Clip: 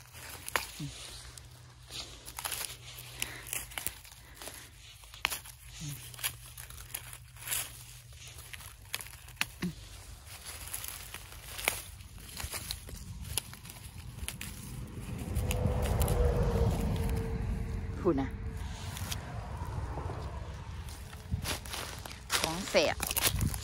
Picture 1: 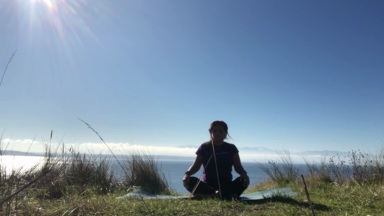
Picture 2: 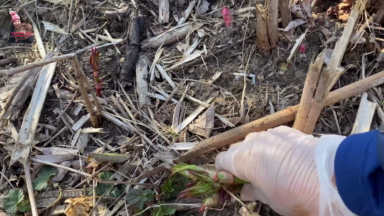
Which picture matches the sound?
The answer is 2